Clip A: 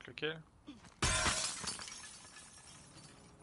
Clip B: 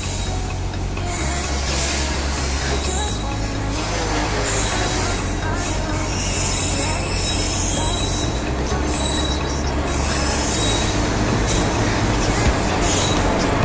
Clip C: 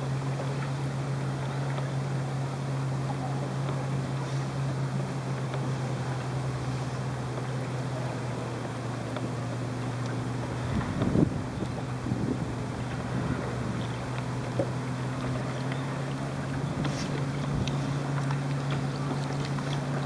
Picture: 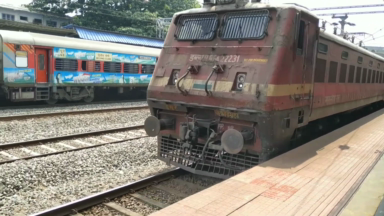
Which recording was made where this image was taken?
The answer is B